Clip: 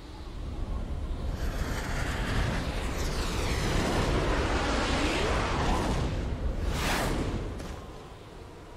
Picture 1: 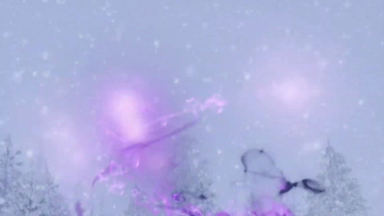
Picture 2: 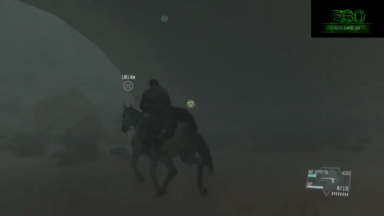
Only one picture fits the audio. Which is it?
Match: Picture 1